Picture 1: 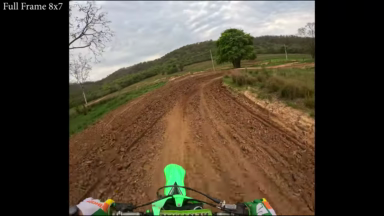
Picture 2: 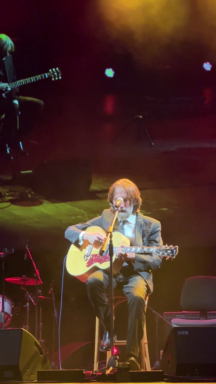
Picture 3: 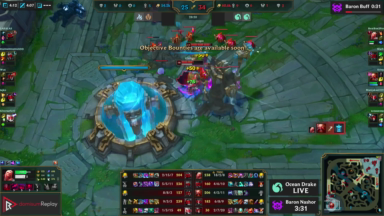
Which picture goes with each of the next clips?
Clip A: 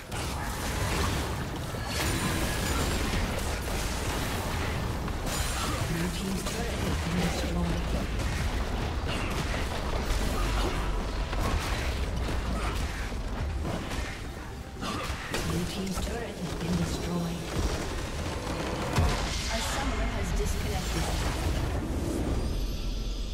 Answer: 3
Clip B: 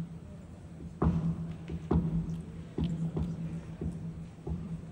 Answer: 2